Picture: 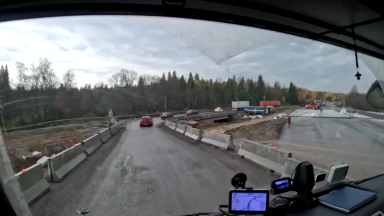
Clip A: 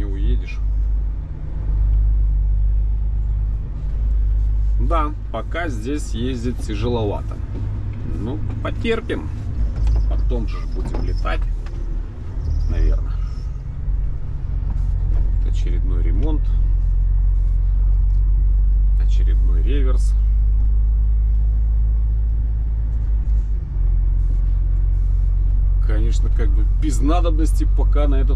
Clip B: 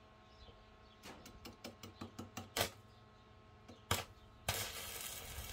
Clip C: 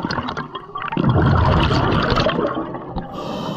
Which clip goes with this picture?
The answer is A